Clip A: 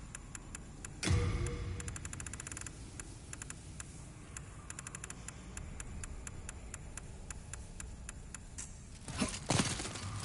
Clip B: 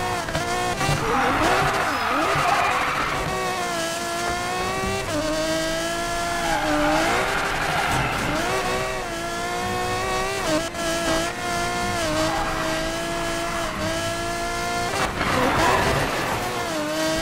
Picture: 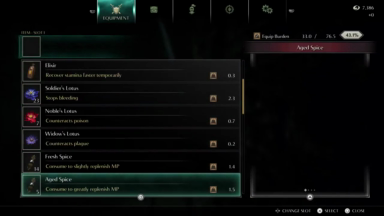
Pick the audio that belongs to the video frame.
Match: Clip A